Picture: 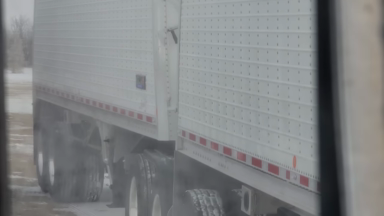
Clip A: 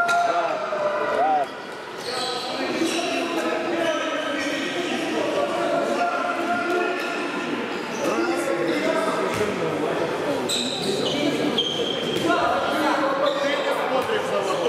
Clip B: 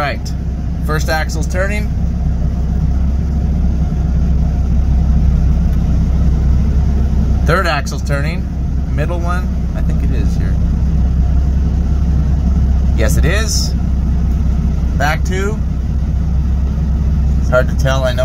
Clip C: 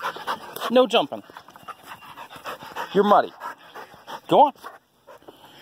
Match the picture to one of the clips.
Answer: B